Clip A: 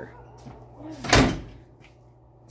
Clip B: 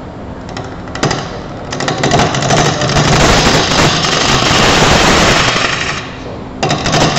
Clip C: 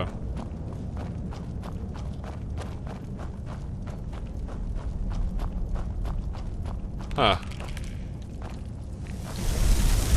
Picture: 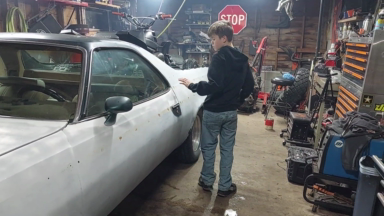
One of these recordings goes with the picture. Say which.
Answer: A